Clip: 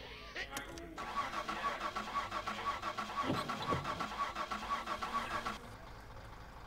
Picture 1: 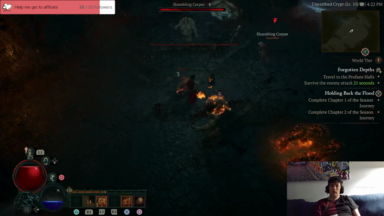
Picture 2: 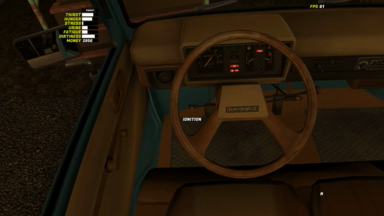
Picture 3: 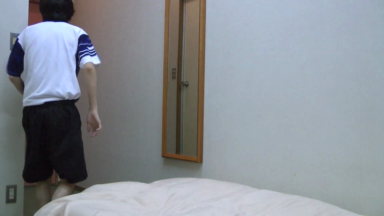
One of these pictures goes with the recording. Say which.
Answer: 2